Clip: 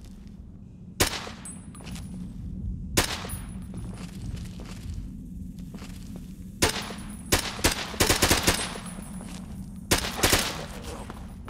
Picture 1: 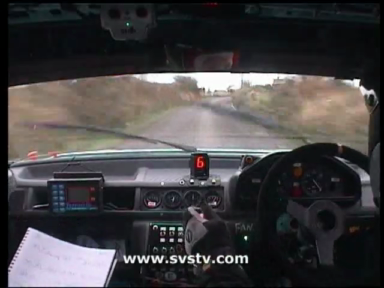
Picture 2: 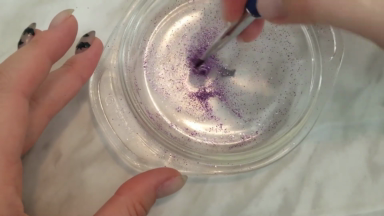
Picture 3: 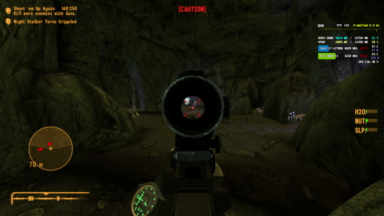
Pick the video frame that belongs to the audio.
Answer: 3